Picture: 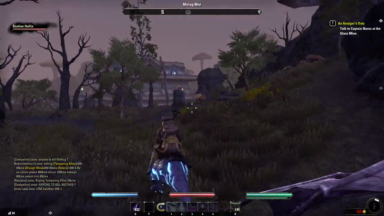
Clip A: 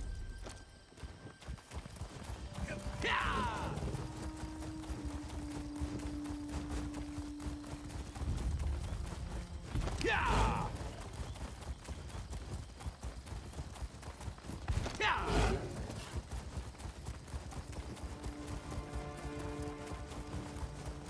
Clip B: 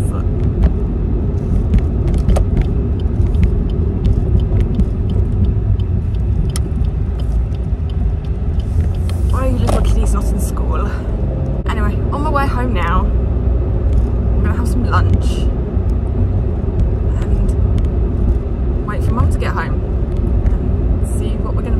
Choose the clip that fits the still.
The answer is A